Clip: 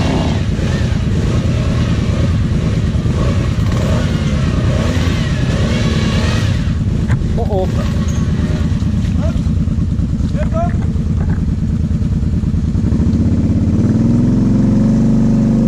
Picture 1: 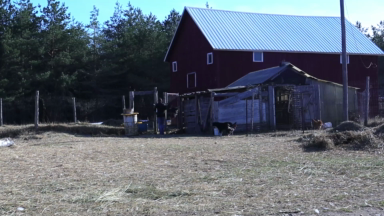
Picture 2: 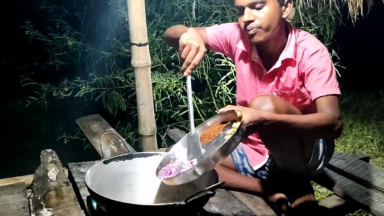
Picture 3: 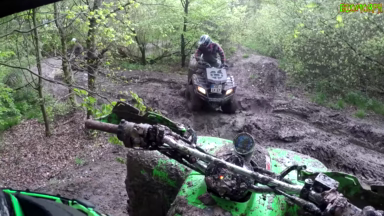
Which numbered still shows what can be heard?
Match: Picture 3